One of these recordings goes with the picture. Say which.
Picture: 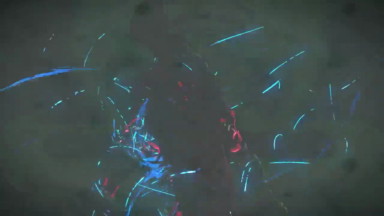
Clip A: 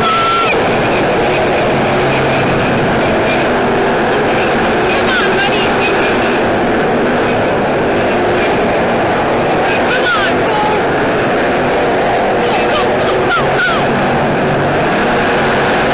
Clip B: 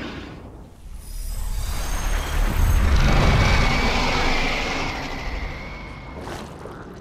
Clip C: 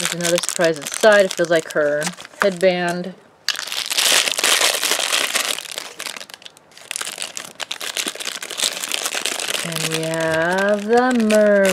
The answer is B